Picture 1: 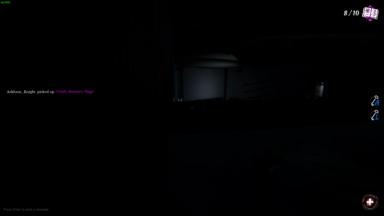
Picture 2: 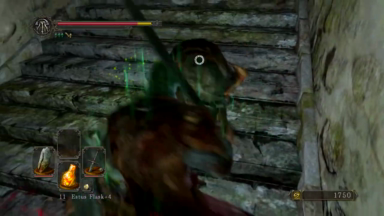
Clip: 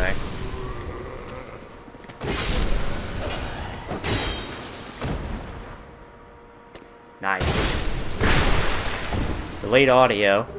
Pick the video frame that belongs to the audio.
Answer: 2